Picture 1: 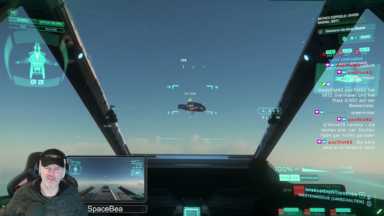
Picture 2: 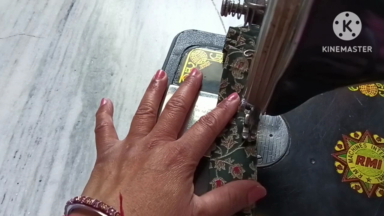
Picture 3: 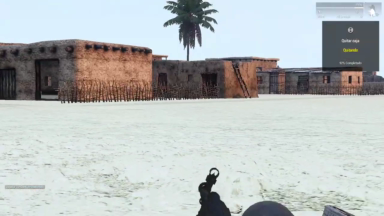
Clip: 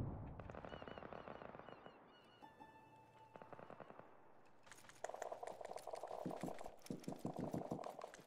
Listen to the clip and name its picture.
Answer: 3